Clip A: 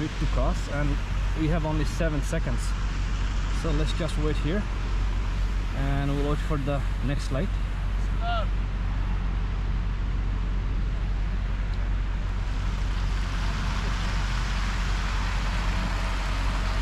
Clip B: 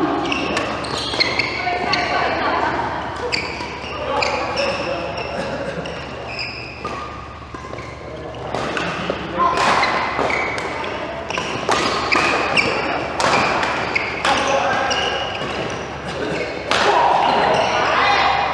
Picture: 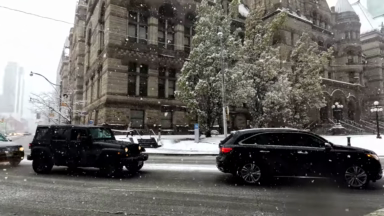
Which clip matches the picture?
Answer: A